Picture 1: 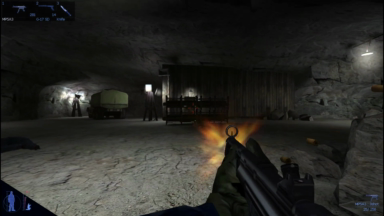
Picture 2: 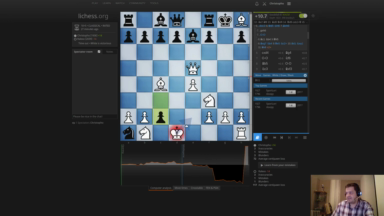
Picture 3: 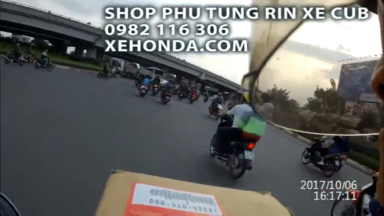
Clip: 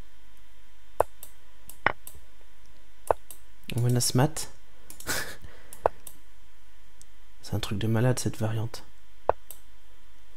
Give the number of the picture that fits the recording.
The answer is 2